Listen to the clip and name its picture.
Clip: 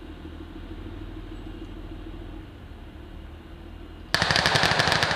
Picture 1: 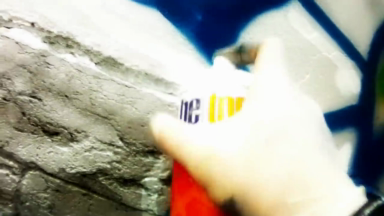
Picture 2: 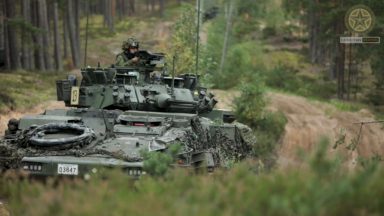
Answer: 2